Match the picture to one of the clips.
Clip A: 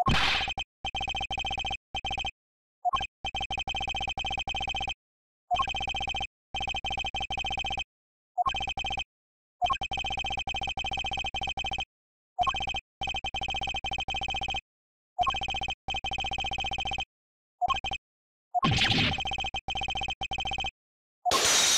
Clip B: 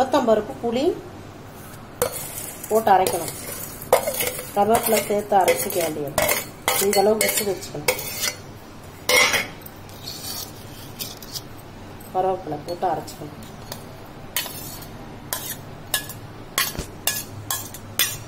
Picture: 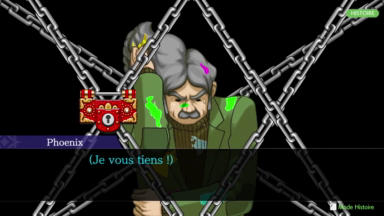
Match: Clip A